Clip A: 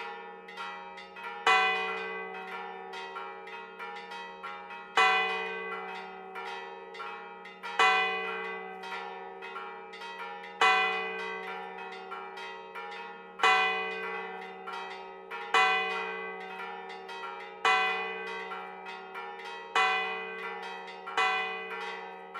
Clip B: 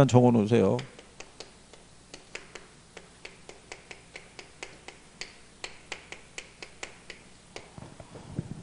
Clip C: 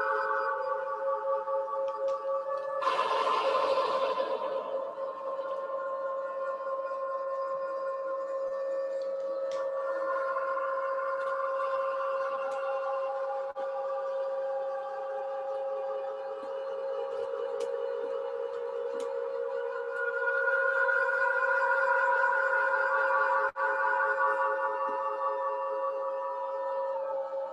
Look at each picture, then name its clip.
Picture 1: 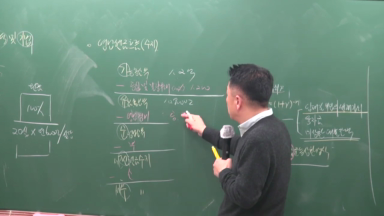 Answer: B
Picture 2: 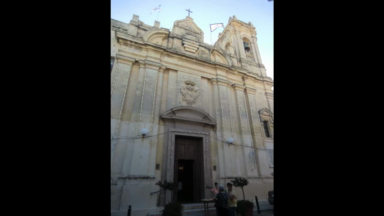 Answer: A